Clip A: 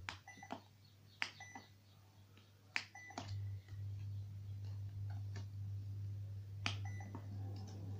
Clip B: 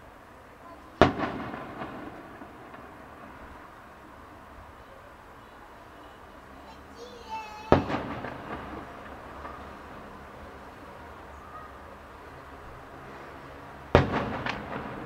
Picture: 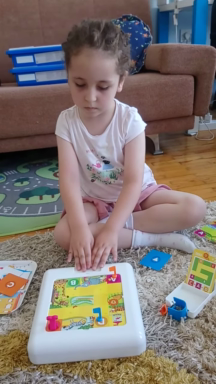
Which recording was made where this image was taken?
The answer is A